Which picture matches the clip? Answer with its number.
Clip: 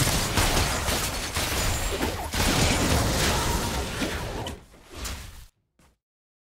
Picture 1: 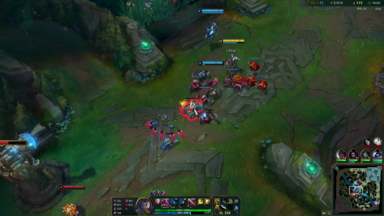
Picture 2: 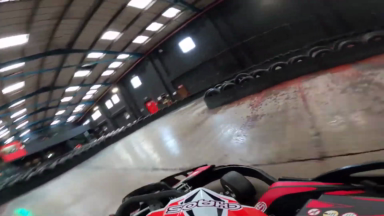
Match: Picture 1